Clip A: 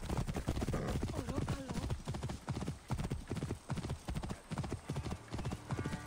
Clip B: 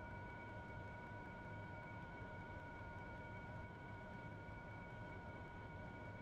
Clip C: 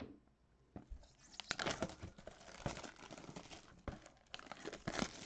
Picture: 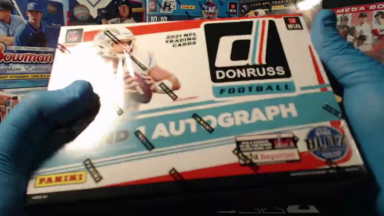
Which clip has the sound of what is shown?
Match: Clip C